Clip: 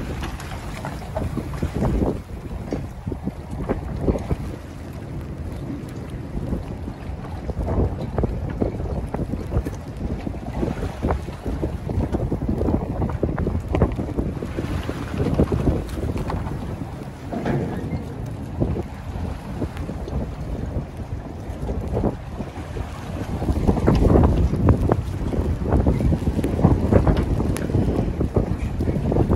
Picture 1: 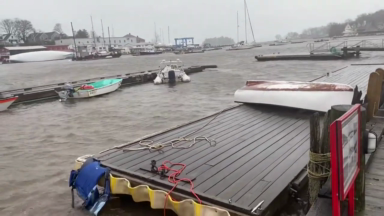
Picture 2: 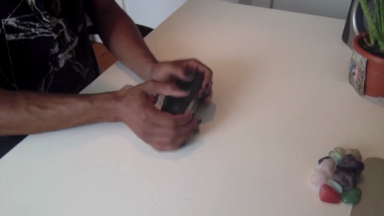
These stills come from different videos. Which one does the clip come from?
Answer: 1